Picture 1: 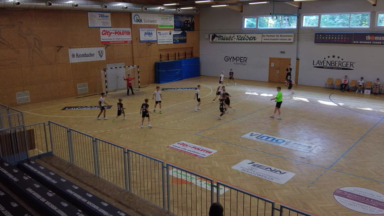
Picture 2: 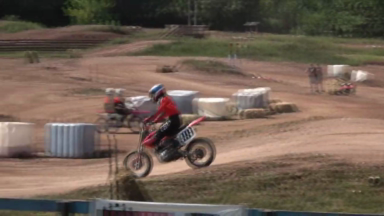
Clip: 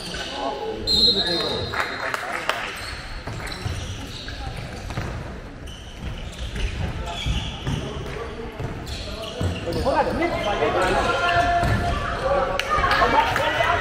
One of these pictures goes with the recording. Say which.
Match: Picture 1